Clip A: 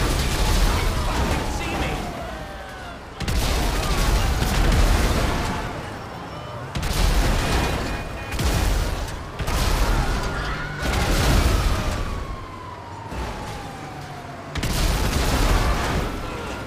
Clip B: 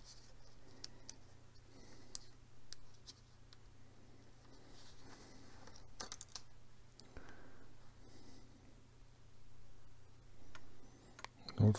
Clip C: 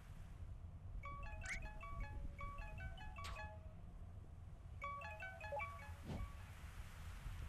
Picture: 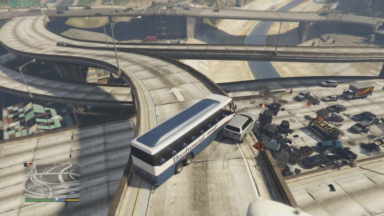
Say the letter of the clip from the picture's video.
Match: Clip A